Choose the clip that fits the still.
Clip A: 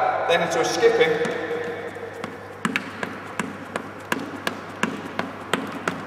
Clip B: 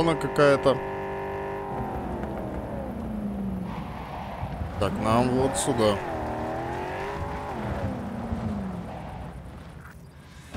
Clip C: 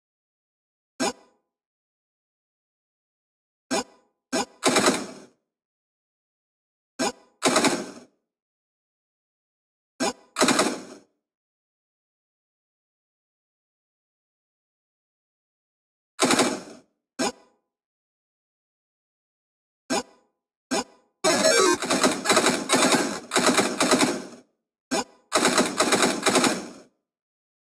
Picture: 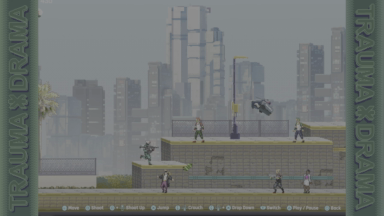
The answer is C